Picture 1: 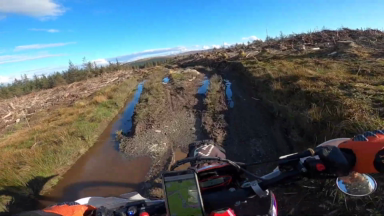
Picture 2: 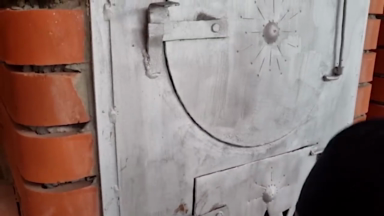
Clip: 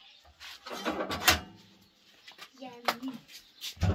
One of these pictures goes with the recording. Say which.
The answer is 2